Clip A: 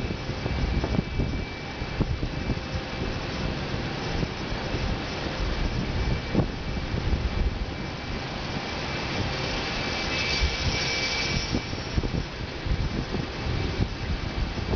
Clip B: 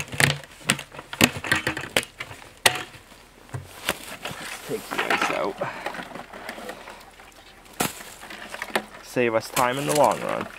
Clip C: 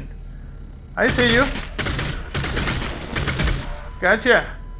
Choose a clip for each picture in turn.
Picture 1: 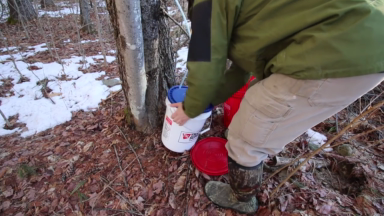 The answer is B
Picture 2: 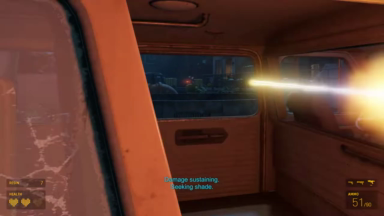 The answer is C